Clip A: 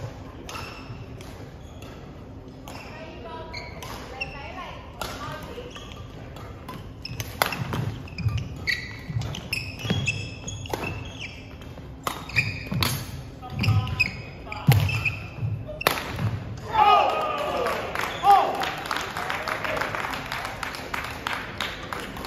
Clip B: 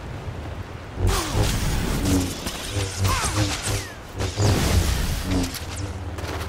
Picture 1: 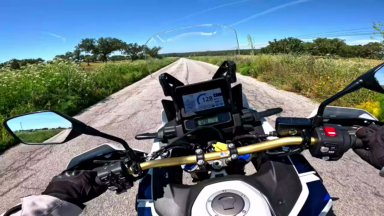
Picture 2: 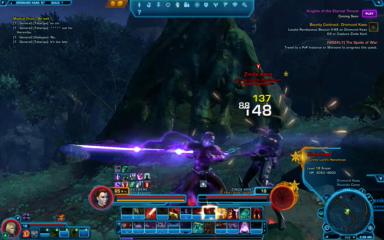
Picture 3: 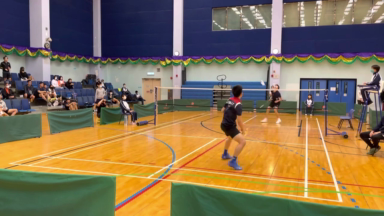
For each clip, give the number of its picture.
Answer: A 3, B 2